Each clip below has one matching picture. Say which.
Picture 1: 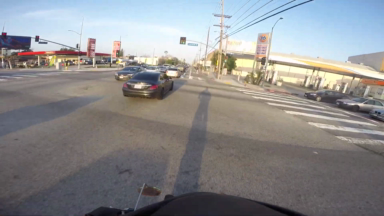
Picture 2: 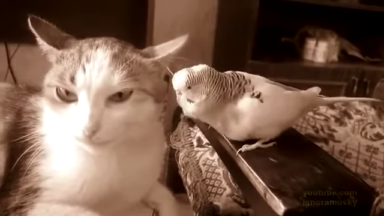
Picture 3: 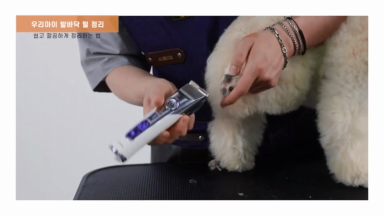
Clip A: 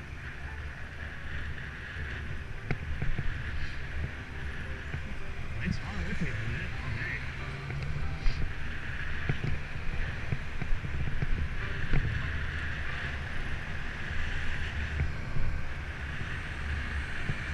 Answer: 1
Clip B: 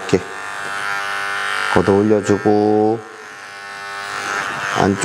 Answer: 3